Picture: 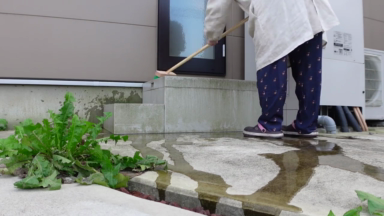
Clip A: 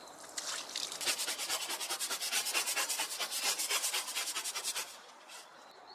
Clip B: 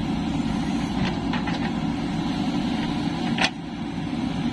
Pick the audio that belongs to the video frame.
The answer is A